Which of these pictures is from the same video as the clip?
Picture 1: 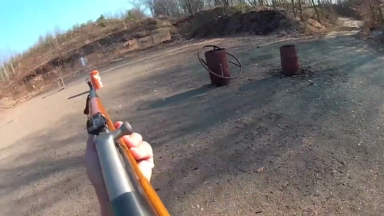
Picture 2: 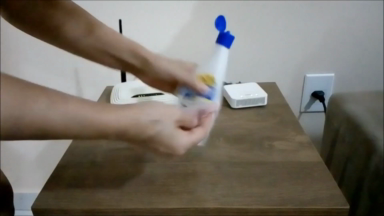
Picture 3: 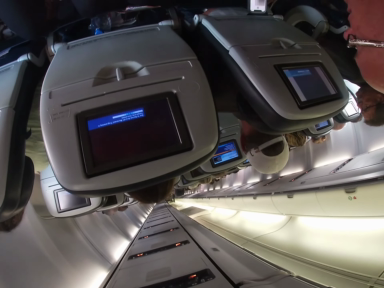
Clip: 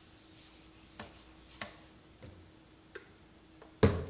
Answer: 2